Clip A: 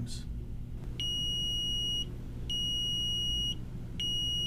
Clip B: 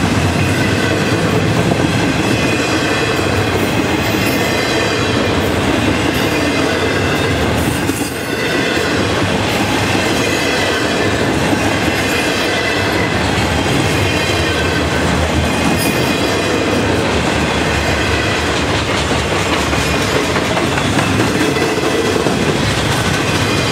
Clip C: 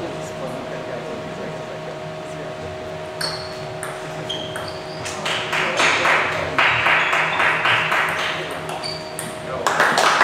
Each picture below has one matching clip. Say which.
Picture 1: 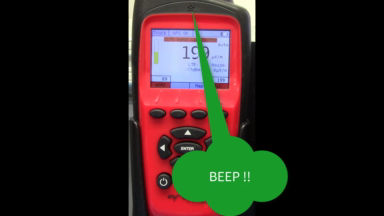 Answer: A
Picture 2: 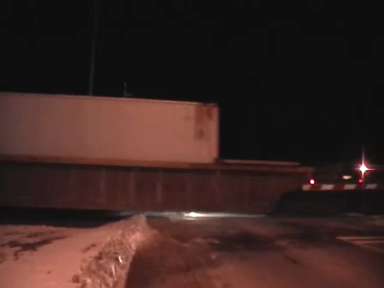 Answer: B